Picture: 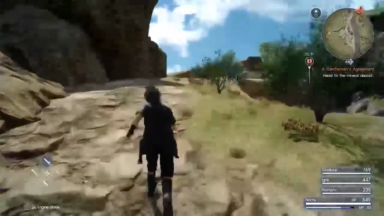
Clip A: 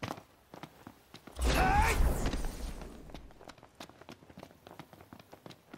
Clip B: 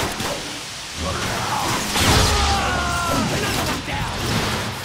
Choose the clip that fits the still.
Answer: A